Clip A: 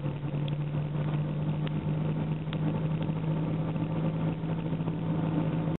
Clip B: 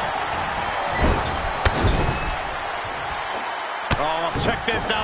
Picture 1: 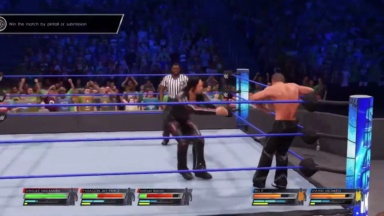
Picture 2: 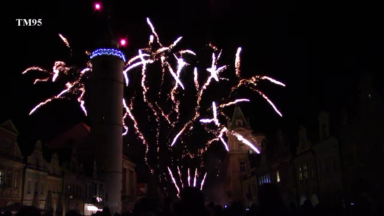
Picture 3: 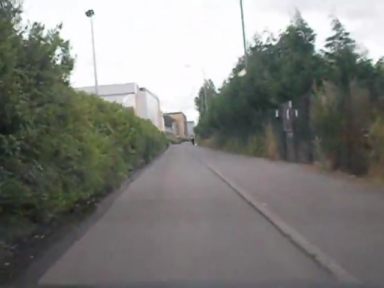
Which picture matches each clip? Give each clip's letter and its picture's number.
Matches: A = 3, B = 1